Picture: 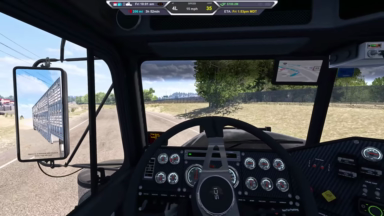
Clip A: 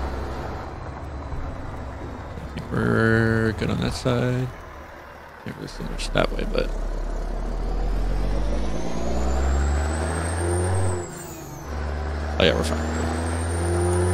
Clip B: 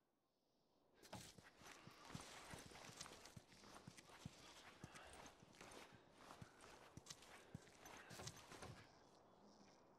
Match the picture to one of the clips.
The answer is A